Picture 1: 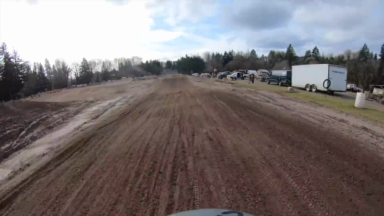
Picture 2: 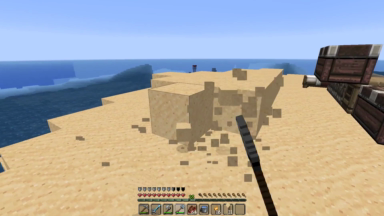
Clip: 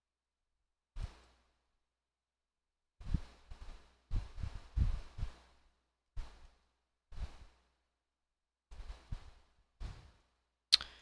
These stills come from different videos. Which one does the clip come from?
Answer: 2